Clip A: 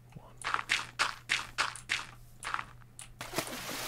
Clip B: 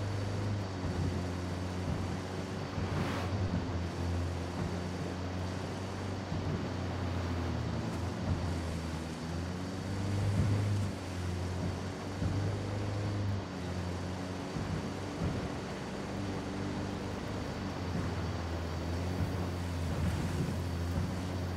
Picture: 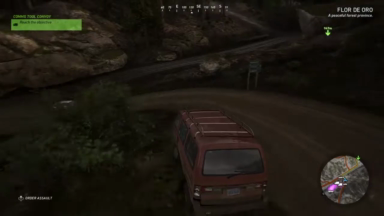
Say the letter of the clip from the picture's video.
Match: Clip B